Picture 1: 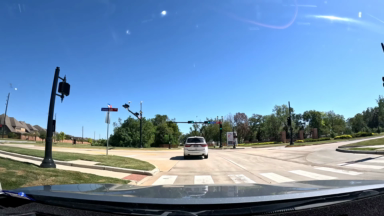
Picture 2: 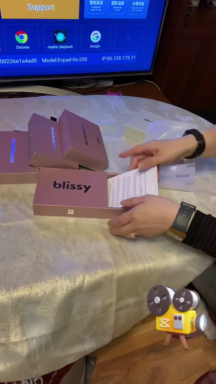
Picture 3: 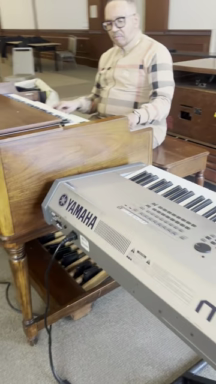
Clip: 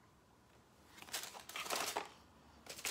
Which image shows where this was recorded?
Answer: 2